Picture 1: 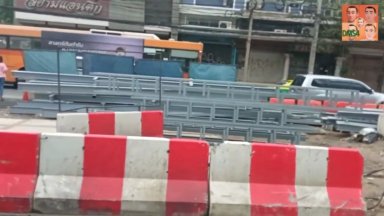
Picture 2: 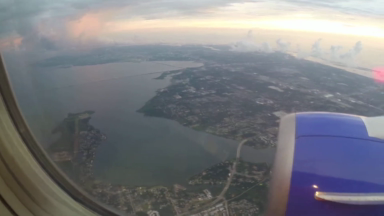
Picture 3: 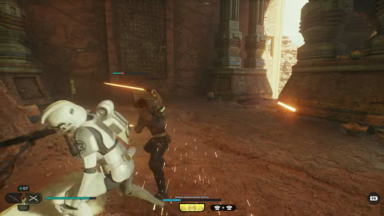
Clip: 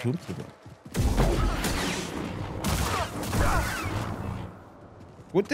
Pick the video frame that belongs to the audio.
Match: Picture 3